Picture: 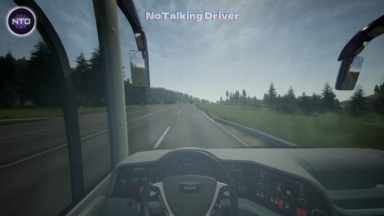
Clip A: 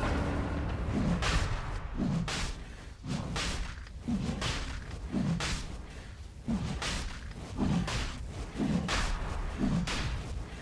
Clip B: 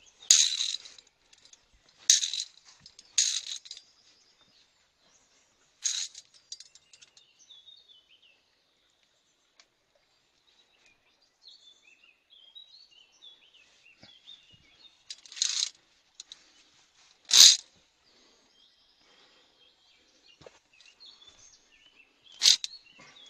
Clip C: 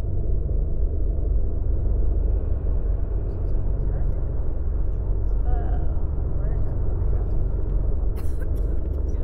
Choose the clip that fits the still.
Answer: C